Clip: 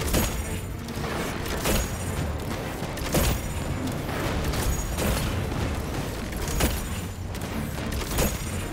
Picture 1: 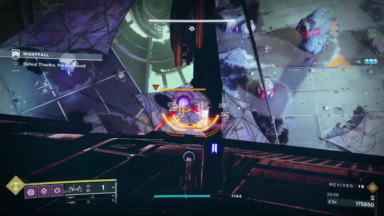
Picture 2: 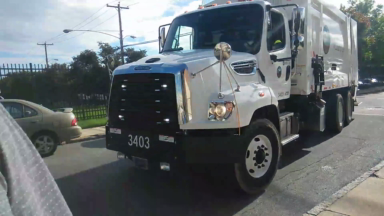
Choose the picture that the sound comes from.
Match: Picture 1